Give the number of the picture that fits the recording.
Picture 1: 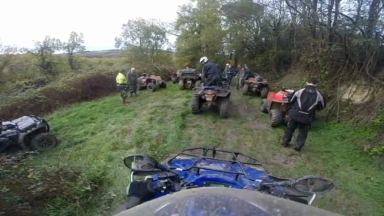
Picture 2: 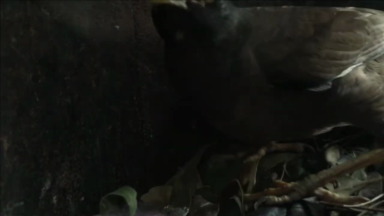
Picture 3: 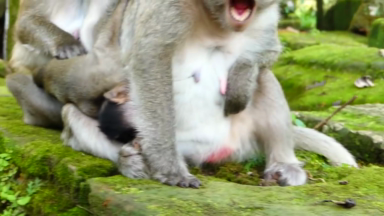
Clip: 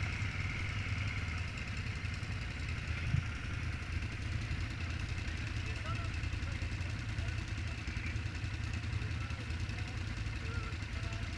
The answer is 1